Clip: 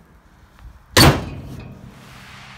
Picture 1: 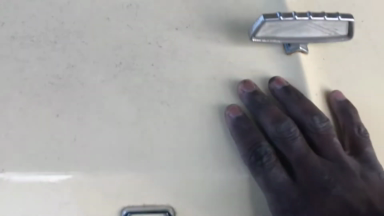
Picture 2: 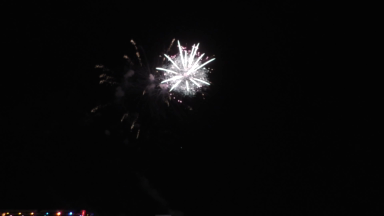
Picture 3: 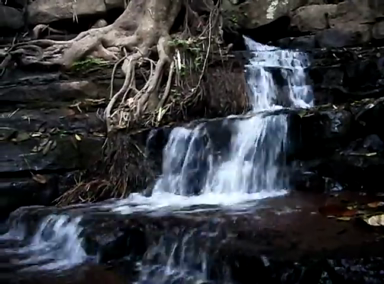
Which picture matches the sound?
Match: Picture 1